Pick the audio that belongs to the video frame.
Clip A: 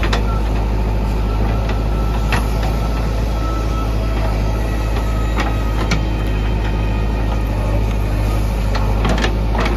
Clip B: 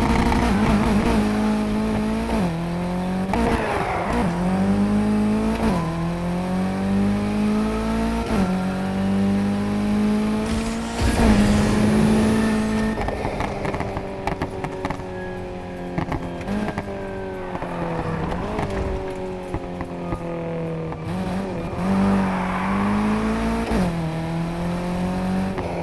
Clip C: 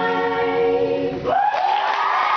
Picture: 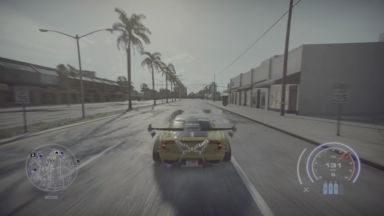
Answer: B